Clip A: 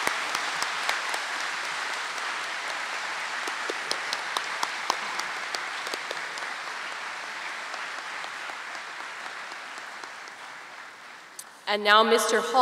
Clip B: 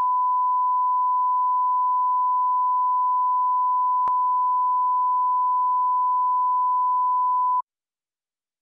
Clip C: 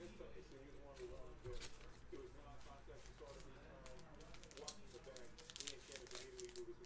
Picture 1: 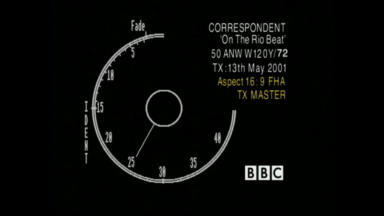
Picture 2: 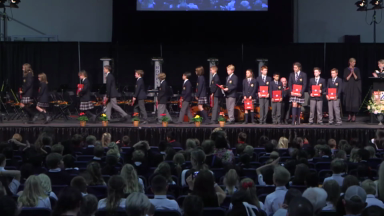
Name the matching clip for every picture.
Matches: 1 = B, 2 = A